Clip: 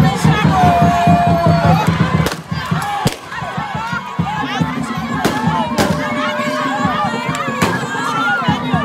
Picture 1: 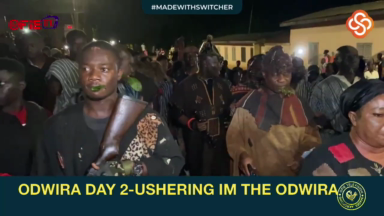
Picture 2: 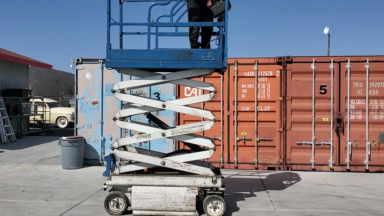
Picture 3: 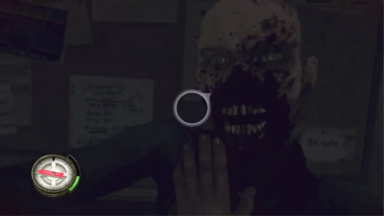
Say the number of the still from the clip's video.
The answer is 1